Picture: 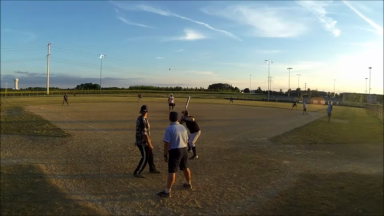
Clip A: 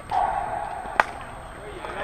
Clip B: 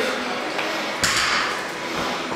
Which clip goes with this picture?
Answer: A